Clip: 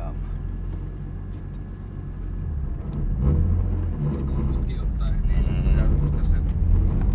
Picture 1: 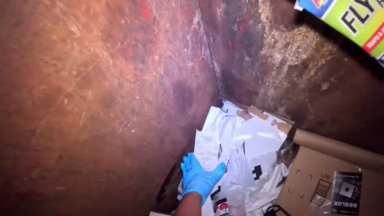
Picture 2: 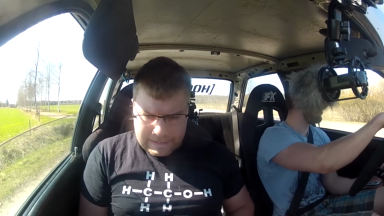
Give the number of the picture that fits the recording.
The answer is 2